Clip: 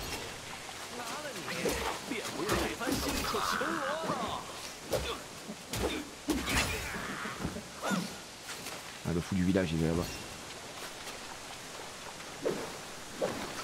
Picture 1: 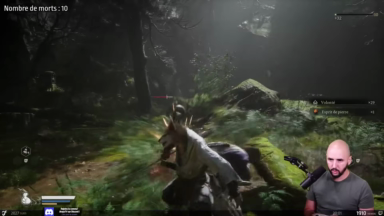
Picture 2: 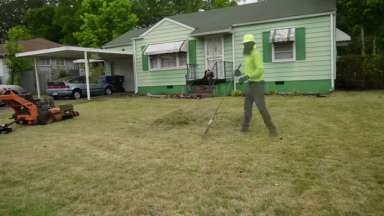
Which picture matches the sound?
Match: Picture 1